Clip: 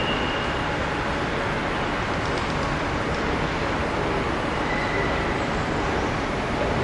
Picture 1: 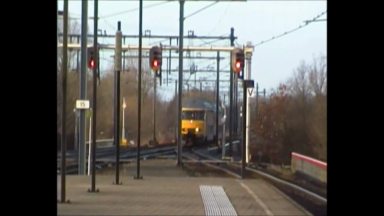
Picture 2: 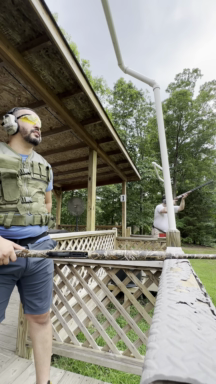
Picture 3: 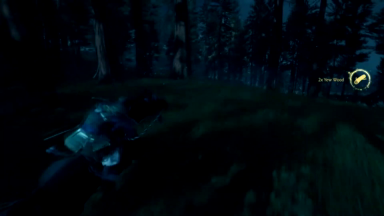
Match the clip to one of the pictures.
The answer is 1